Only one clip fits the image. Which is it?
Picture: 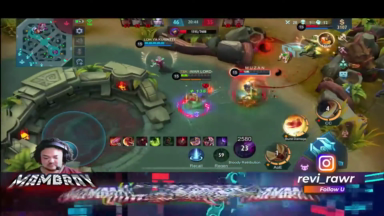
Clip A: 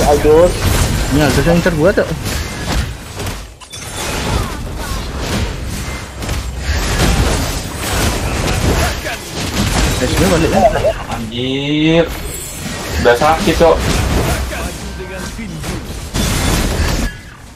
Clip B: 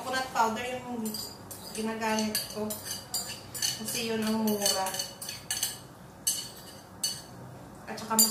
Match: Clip A